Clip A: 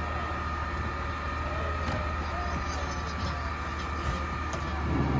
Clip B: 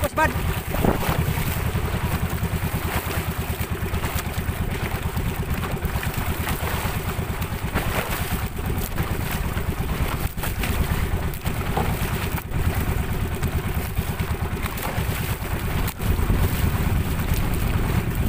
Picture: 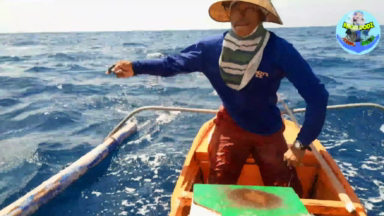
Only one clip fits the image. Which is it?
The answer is B